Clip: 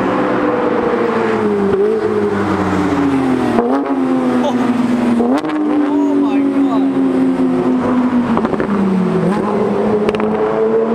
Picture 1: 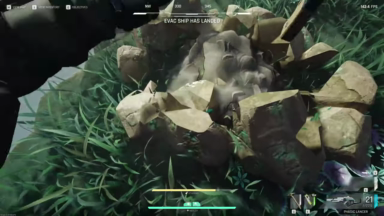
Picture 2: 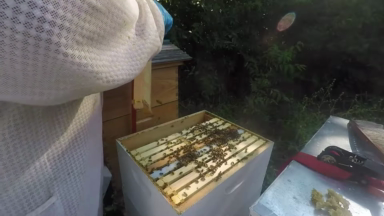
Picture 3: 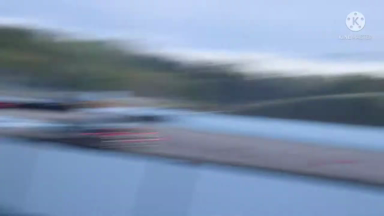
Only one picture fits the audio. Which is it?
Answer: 3